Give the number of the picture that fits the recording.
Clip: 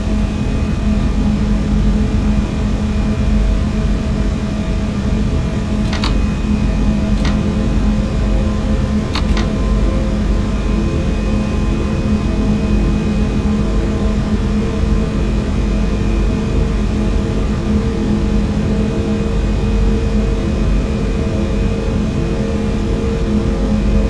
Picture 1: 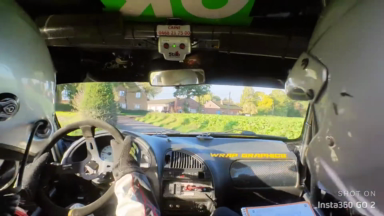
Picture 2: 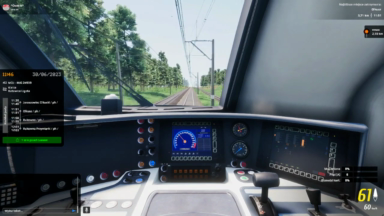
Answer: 2